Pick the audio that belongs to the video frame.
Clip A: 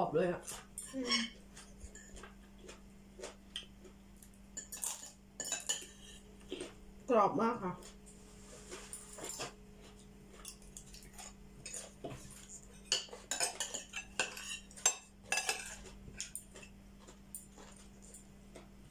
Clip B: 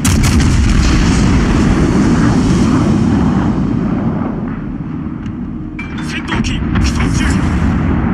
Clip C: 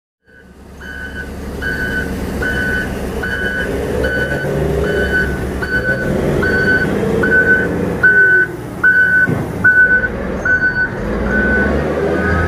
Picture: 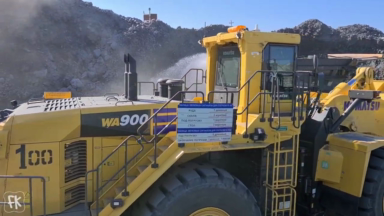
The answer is C